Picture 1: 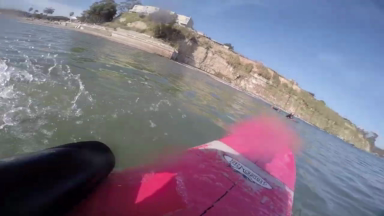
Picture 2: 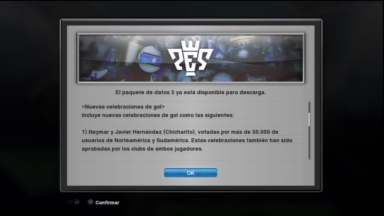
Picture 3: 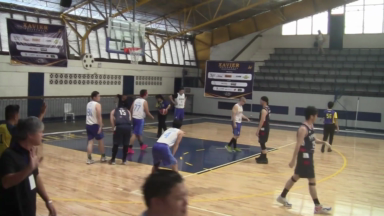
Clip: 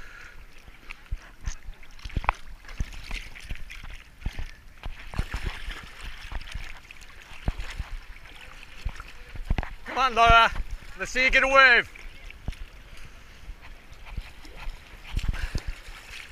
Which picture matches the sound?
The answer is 1